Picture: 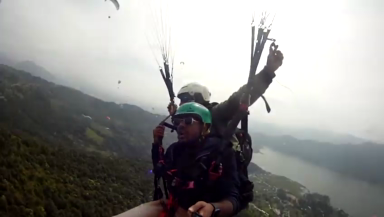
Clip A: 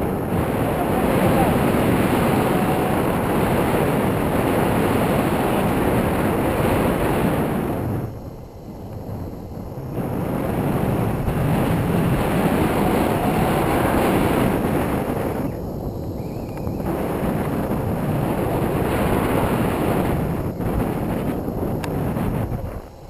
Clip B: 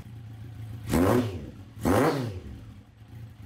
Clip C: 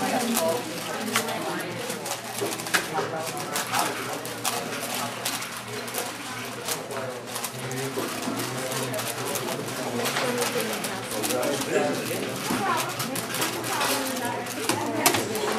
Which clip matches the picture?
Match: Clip A